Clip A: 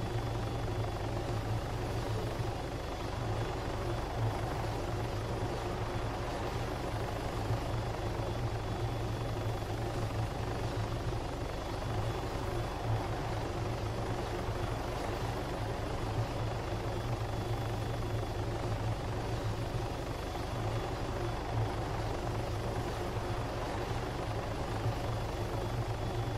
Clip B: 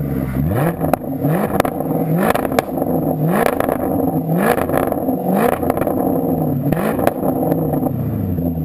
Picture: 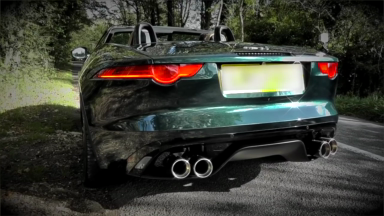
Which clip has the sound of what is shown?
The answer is B